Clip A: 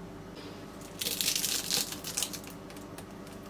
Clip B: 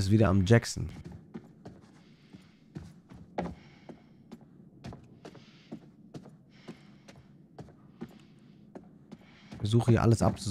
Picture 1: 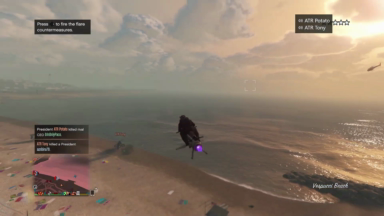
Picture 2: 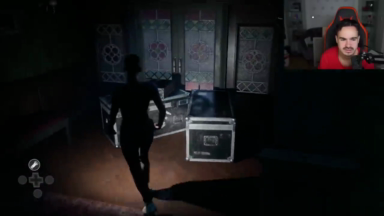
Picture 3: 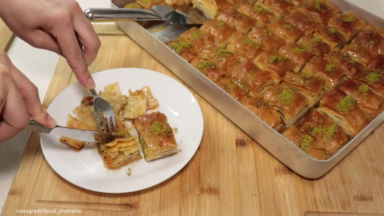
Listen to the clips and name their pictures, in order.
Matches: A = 3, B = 2